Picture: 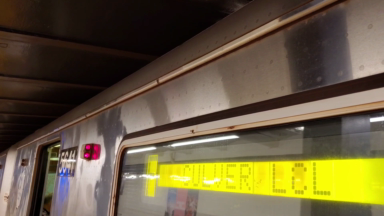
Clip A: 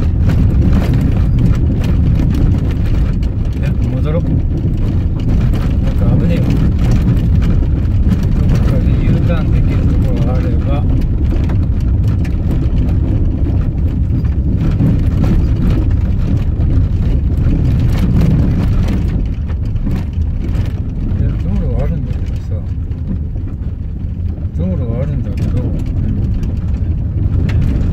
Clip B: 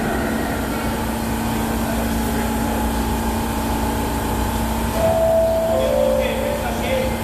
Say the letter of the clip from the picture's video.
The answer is B